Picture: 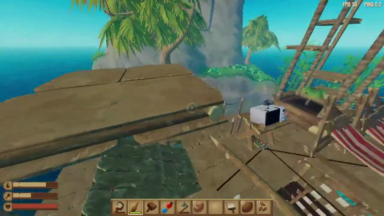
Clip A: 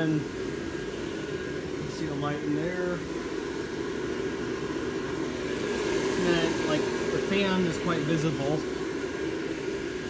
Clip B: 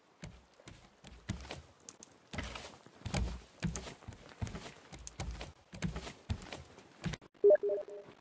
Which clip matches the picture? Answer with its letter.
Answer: B